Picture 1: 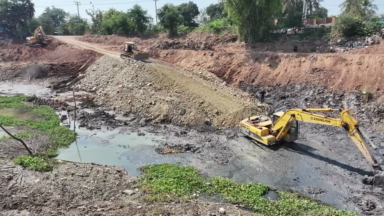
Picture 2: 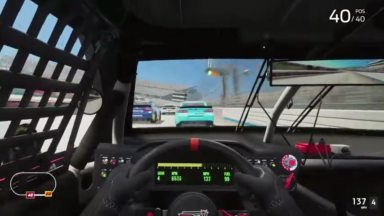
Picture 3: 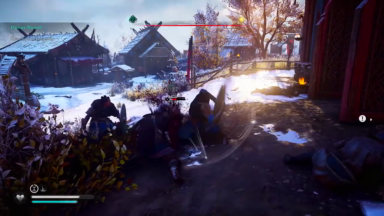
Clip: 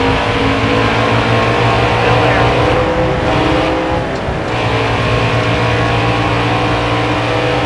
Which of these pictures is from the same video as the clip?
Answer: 2